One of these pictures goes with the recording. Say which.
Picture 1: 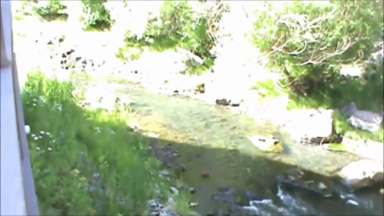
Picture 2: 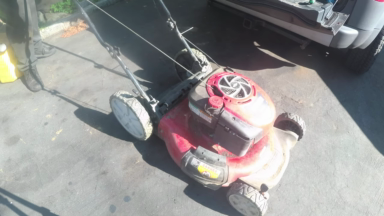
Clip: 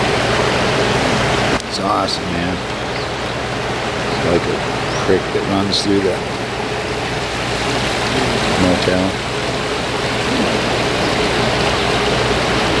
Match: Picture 1